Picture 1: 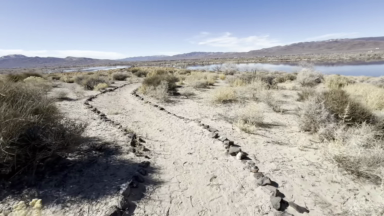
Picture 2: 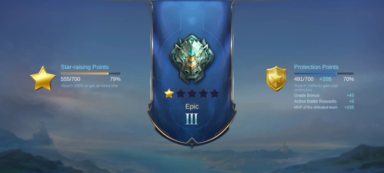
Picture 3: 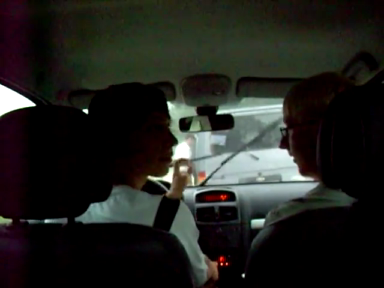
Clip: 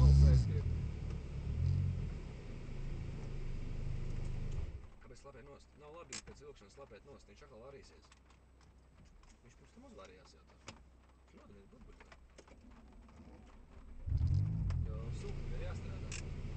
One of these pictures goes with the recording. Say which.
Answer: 3